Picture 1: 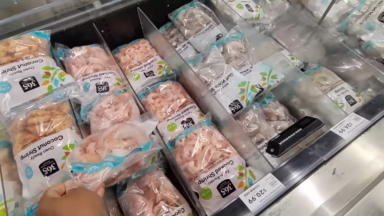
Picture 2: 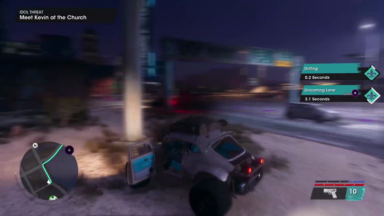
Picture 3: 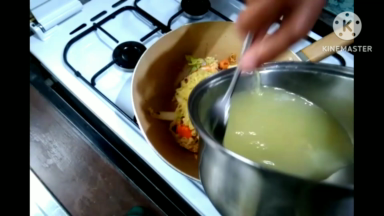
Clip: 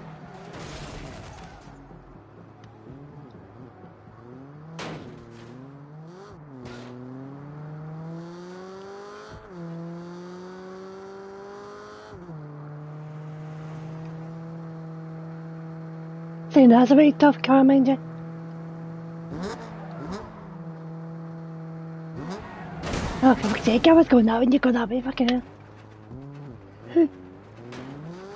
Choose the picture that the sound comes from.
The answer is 2